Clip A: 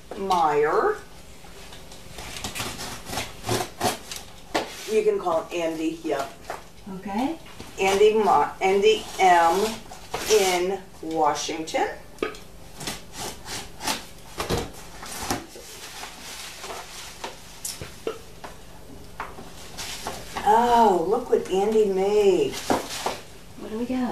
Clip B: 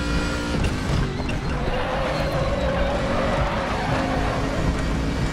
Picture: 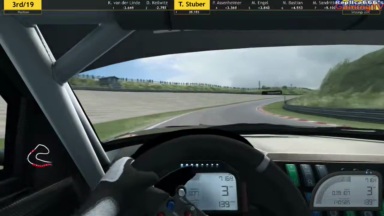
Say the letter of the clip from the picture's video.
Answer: B